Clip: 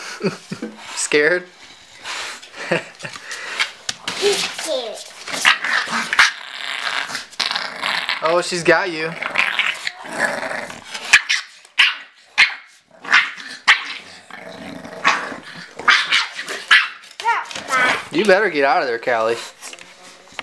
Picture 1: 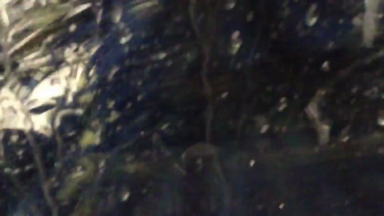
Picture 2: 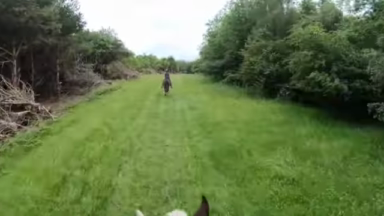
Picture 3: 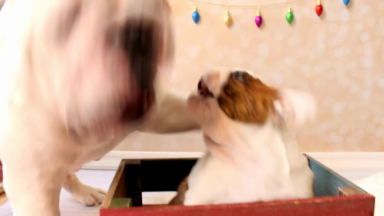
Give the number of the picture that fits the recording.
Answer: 3